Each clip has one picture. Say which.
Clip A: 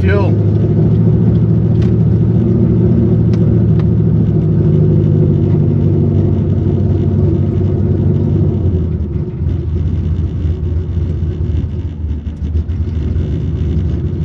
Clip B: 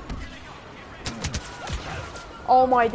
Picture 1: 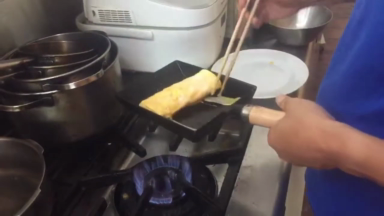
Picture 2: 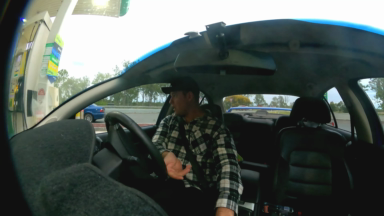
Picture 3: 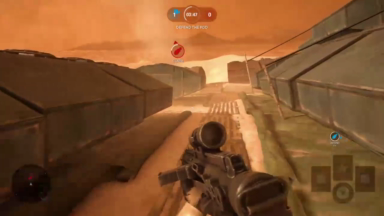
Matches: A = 2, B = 3